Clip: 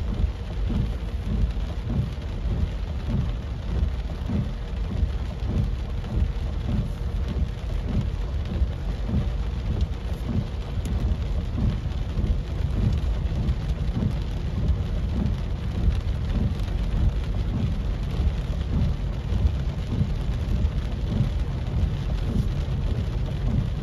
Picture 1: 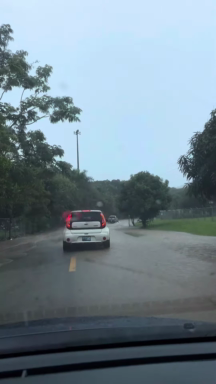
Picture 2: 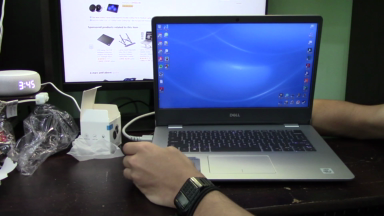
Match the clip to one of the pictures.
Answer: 1